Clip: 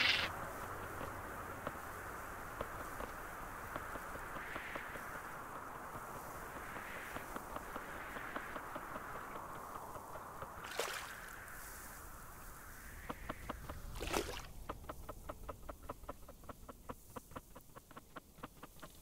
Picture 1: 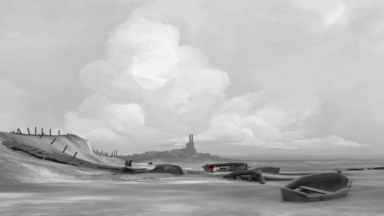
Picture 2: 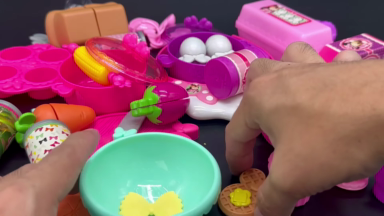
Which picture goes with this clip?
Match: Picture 1